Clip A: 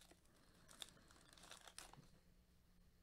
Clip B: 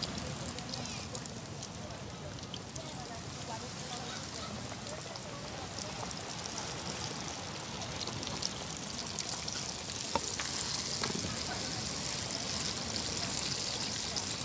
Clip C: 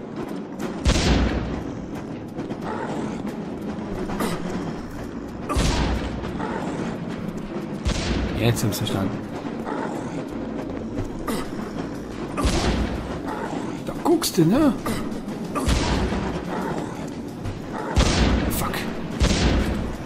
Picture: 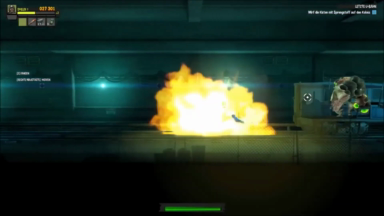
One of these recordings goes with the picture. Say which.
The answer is C